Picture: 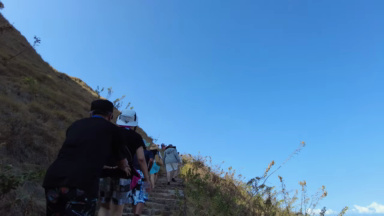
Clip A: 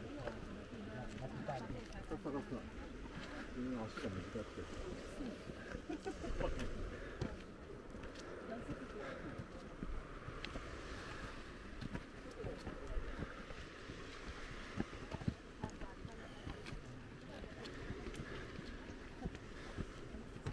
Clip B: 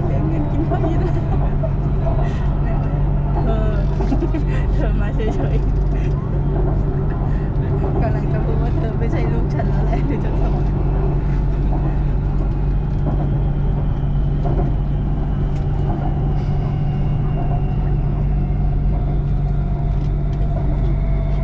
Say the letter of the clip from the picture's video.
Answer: A